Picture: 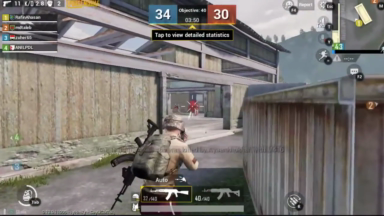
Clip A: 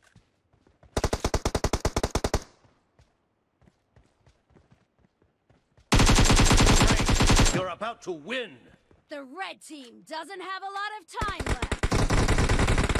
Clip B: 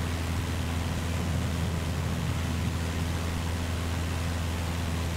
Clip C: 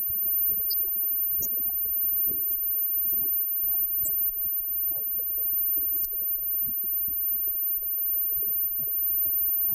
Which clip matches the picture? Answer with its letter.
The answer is A